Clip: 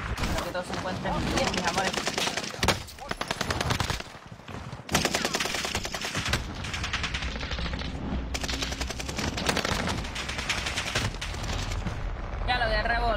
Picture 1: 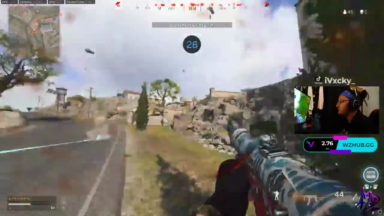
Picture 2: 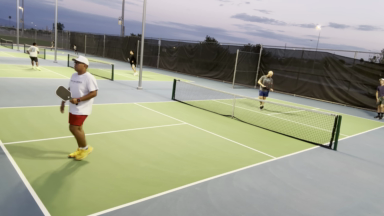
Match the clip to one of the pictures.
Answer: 1